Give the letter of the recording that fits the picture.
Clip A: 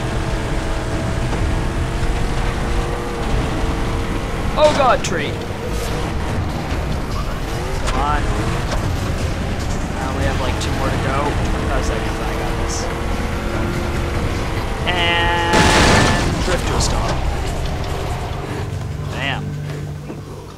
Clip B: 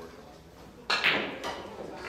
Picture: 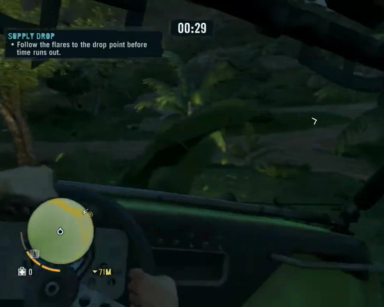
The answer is A